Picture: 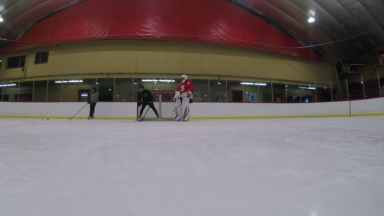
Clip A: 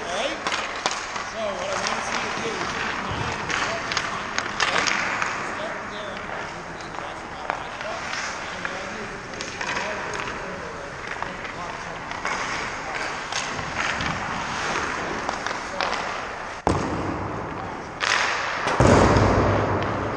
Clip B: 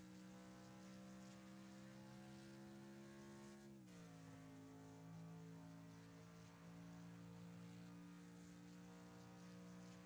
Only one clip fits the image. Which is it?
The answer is A